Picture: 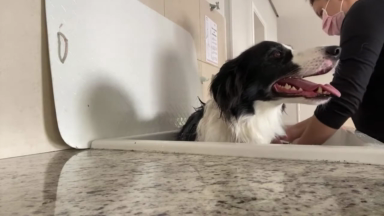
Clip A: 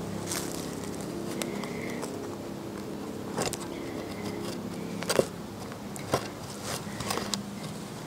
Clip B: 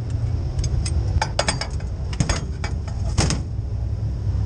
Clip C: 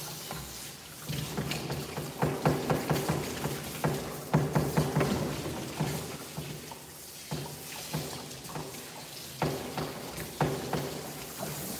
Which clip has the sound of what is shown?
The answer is C